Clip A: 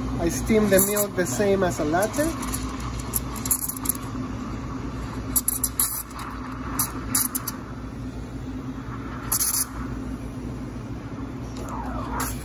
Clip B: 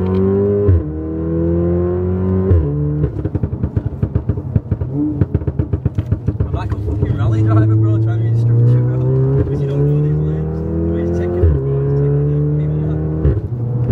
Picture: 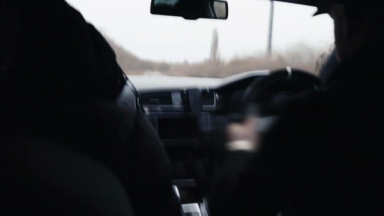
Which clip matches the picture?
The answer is B